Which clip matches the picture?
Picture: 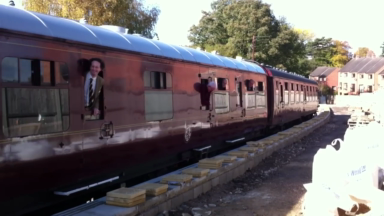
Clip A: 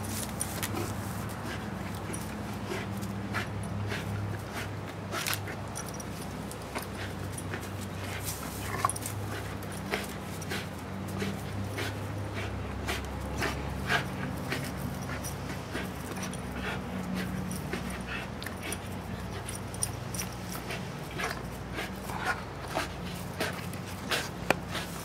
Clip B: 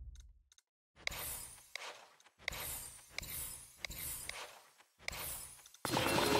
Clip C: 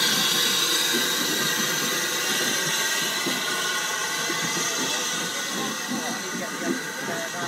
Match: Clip C